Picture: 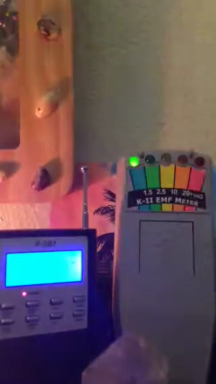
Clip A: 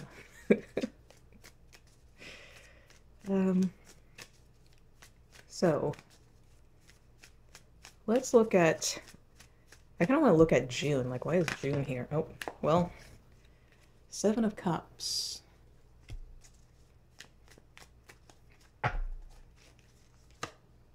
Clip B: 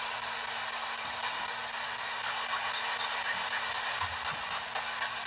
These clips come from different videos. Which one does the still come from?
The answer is B